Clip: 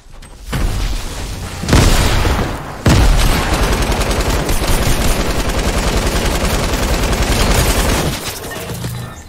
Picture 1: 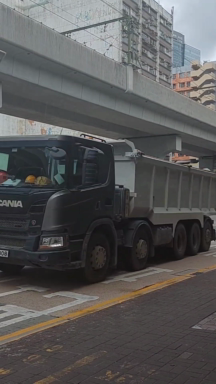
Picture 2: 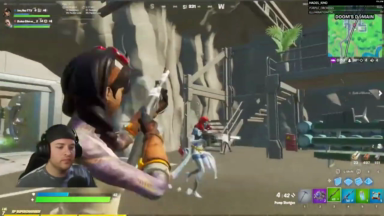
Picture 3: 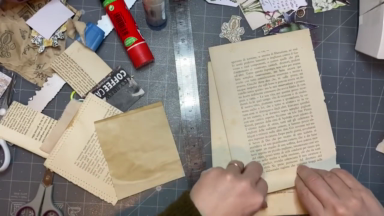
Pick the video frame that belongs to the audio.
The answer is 2